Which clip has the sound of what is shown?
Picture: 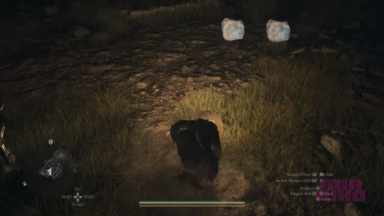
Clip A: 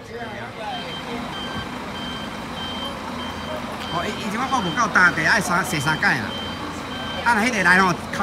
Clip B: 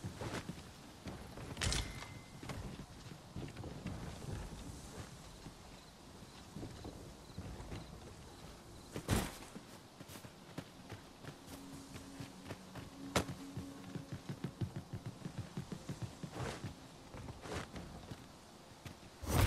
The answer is B